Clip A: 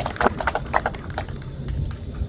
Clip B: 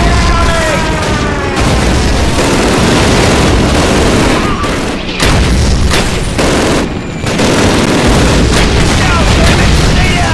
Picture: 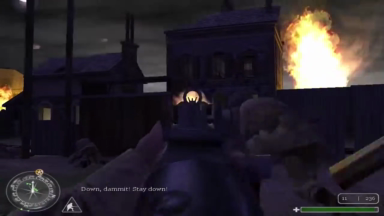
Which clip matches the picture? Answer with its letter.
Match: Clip B